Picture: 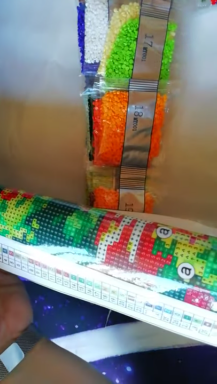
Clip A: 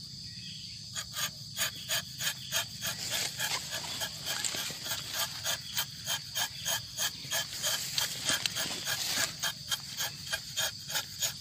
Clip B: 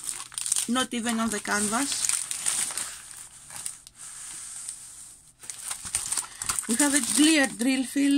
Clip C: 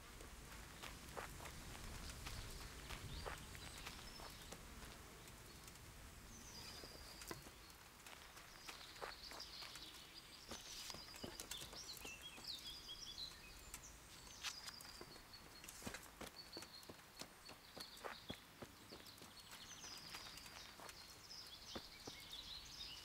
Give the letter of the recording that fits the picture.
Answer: B